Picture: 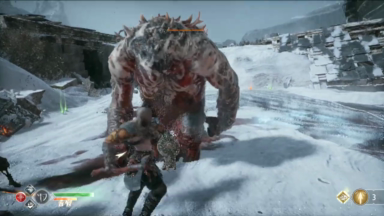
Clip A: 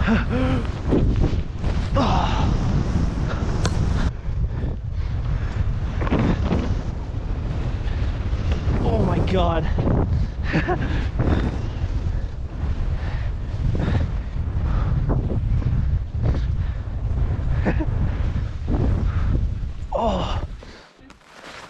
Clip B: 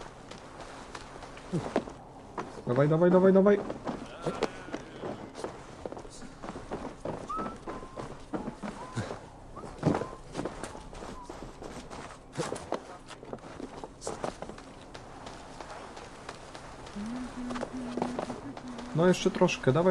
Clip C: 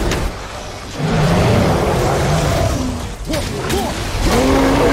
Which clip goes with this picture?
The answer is C